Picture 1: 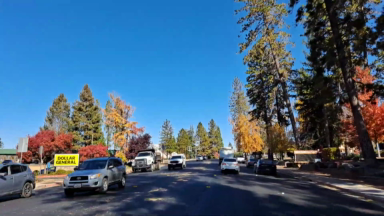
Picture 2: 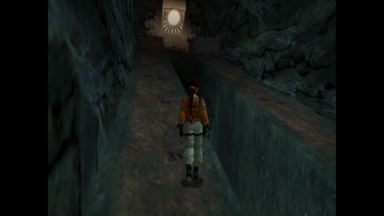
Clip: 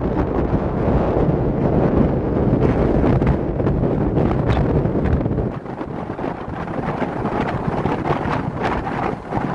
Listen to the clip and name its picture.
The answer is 1